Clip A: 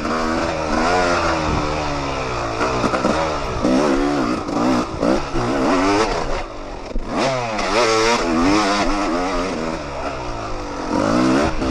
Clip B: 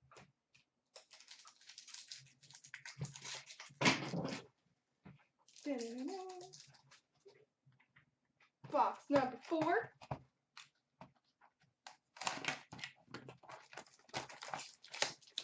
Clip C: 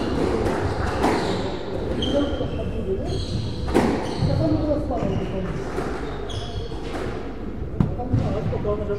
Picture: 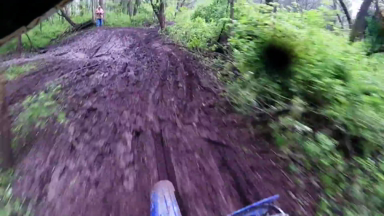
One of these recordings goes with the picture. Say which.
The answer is A